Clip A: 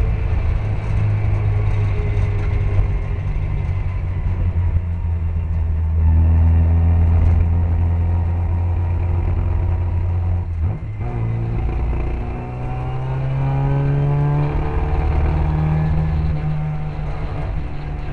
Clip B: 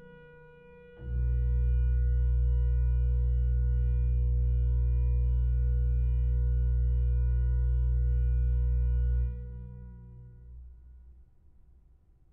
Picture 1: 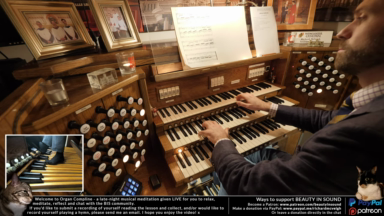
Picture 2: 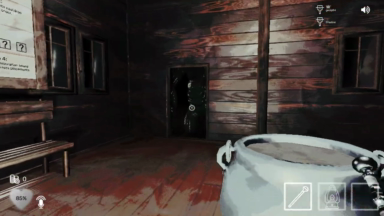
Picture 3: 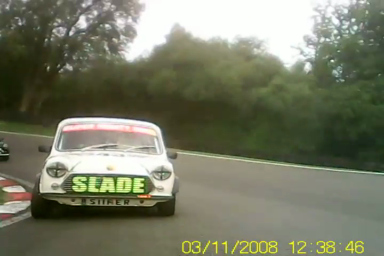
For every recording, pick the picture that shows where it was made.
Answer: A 3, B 1